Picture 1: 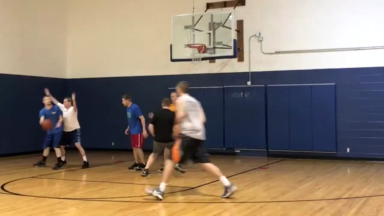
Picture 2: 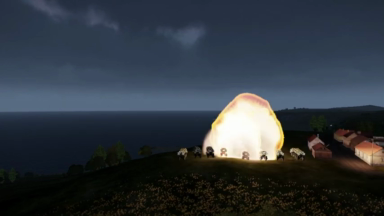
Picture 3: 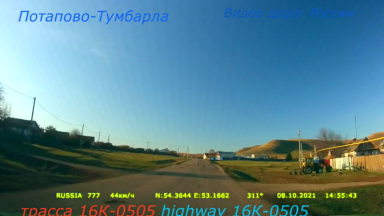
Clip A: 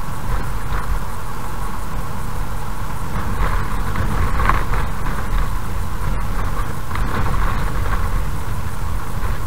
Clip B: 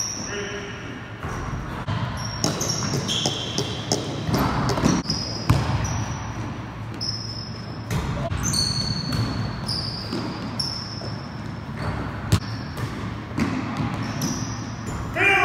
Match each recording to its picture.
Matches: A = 3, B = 1